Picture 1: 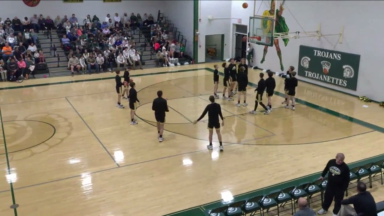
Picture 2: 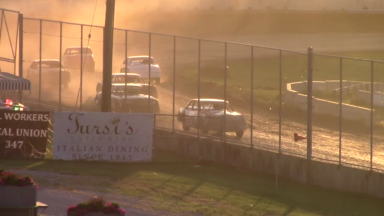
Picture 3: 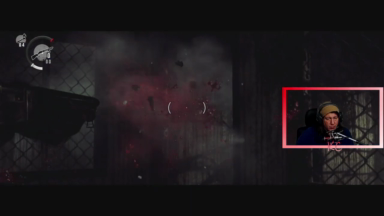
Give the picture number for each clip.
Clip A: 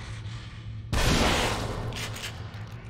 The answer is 3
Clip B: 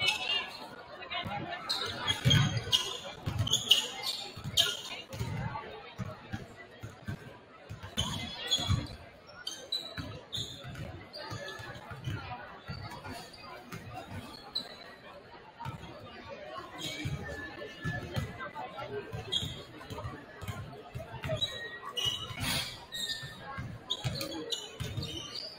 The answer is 1